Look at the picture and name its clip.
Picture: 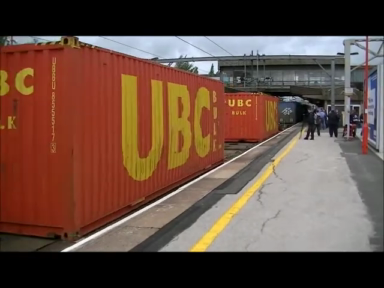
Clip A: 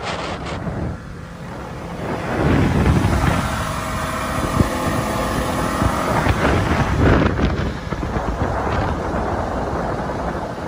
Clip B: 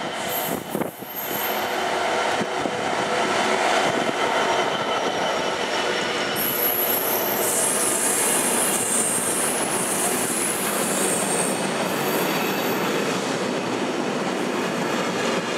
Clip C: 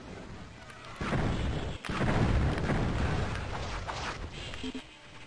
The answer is B